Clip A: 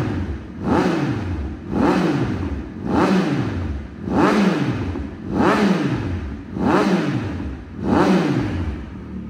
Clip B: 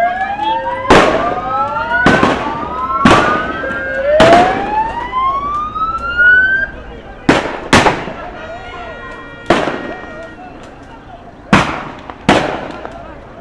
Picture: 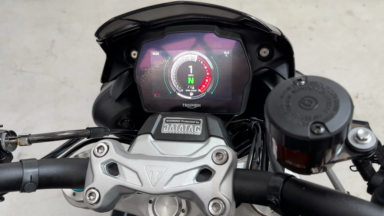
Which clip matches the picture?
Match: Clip A